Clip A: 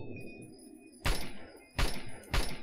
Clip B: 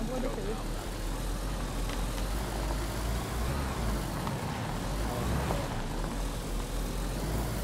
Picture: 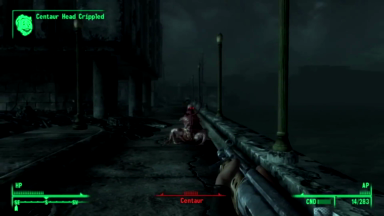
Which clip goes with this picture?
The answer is A